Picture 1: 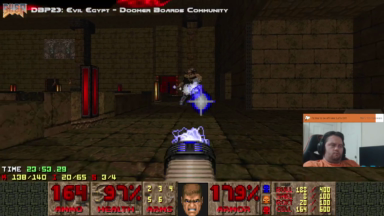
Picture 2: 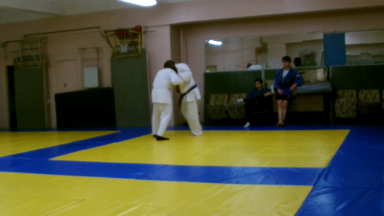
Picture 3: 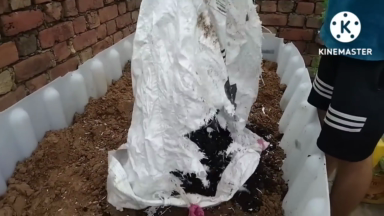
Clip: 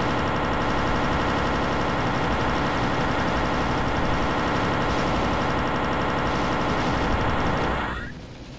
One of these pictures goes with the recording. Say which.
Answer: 1